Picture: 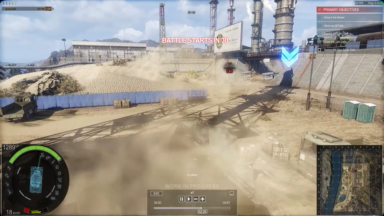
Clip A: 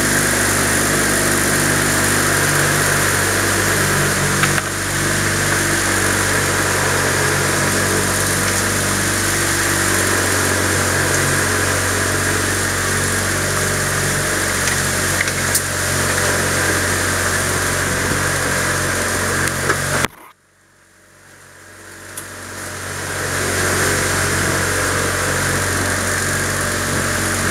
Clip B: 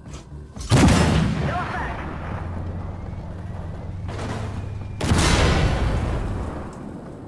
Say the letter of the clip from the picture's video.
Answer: B